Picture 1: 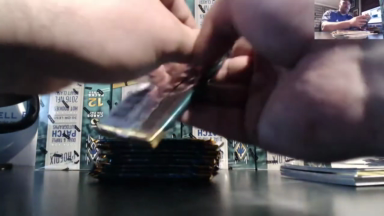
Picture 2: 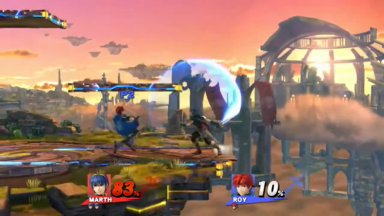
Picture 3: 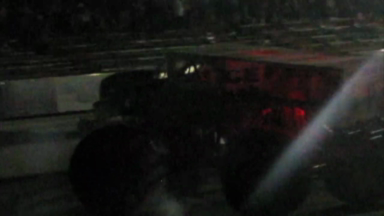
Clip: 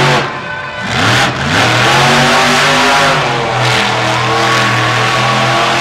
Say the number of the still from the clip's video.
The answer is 3